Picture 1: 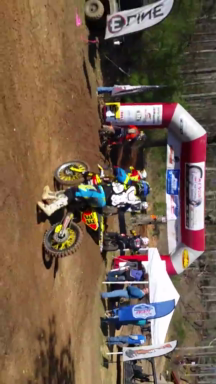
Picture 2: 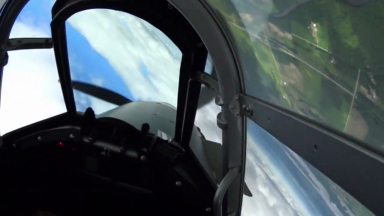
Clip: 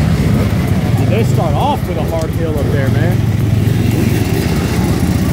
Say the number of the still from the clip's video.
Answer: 1